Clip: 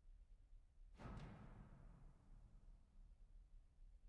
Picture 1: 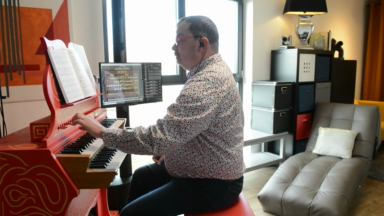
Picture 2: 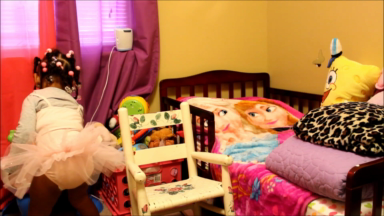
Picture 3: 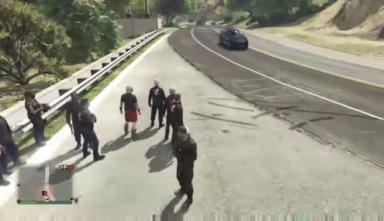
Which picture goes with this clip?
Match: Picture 1